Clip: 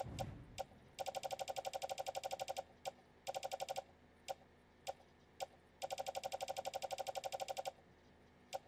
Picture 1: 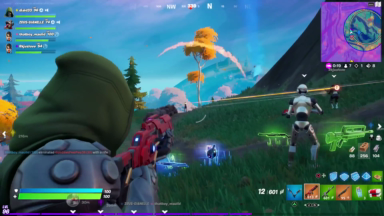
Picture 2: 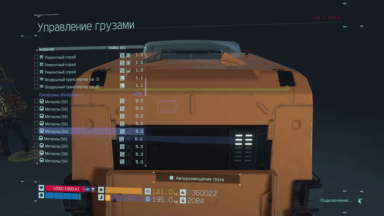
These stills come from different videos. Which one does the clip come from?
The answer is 2